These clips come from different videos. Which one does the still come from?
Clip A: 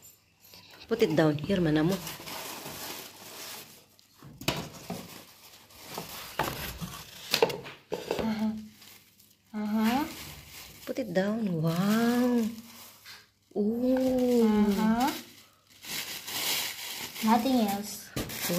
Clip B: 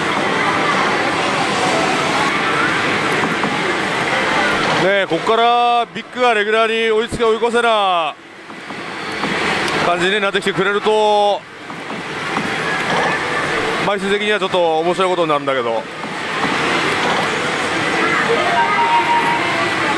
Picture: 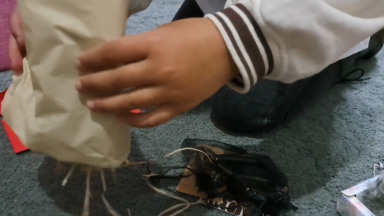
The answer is A